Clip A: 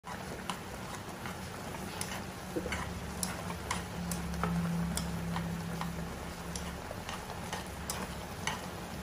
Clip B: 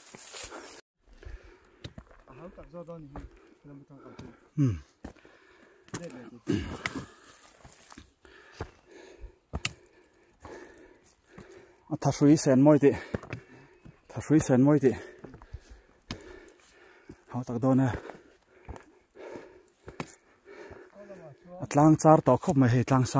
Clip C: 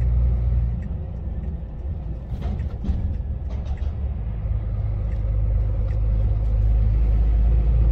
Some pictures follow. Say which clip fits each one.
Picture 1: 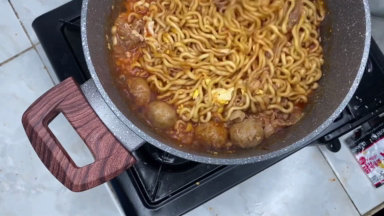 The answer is A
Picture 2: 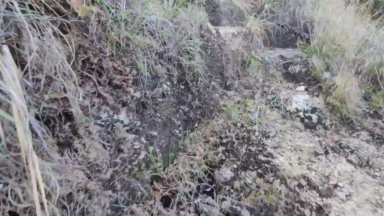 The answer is B